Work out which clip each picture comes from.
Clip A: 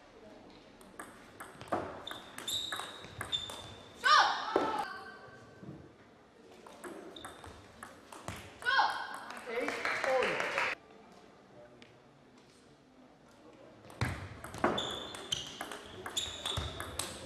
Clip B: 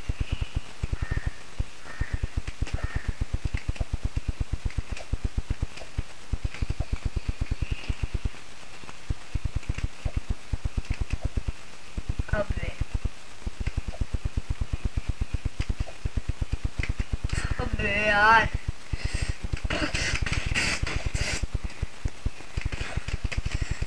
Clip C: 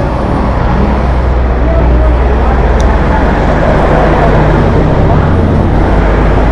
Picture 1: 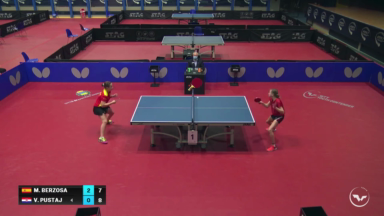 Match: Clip A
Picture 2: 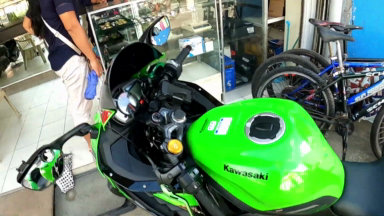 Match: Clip C